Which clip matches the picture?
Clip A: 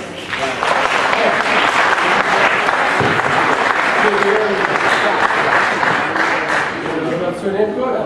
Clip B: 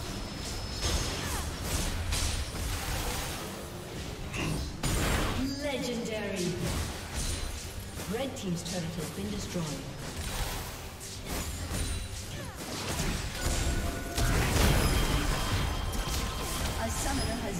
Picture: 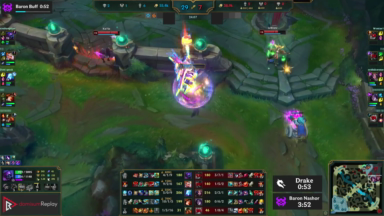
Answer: B